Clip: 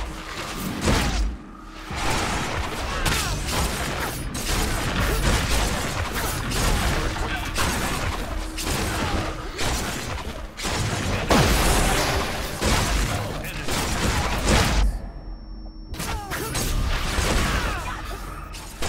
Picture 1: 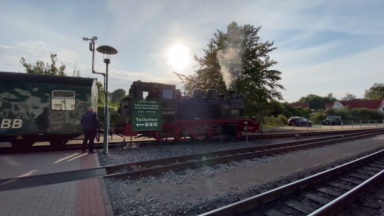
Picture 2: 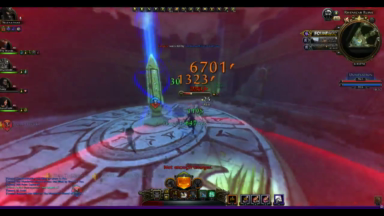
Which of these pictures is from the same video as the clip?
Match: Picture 2